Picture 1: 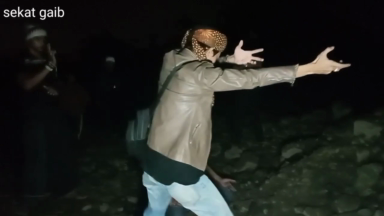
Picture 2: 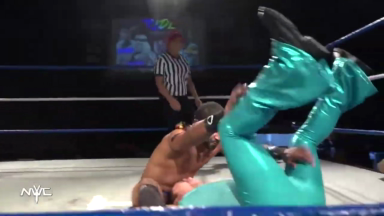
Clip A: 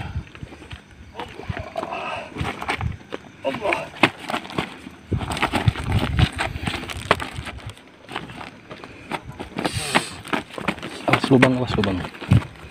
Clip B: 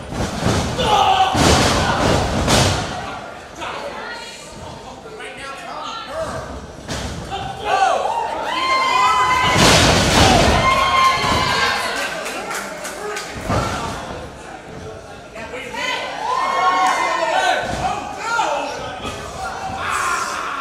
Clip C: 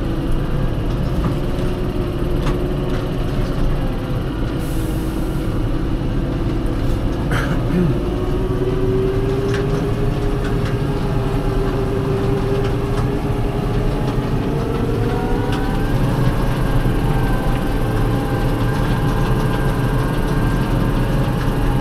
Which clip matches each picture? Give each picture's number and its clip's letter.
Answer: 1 A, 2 B